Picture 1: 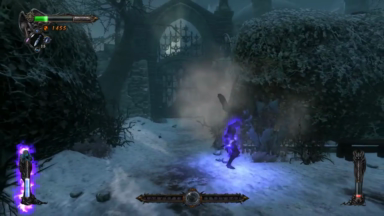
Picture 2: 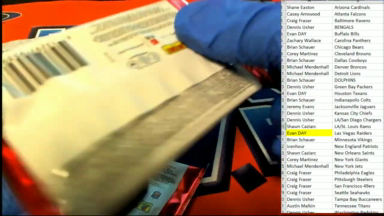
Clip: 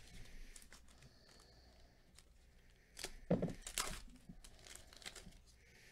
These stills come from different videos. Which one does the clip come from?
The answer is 2